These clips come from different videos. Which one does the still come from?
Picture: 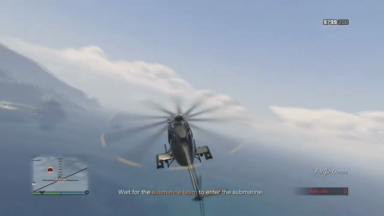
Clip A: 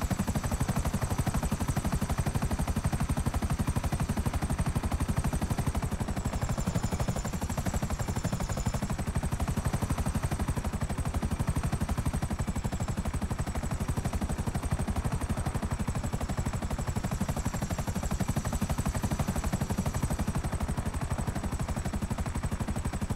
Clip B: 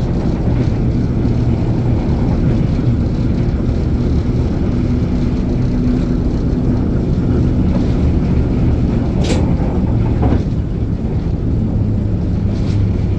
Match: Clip A